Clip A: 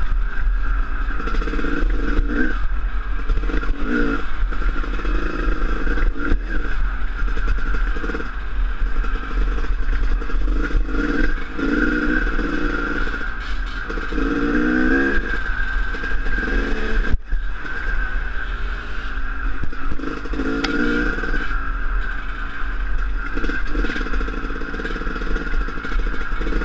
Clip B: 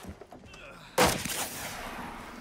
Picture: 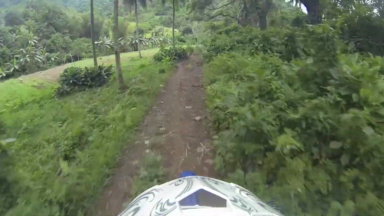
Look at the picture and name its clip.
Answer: A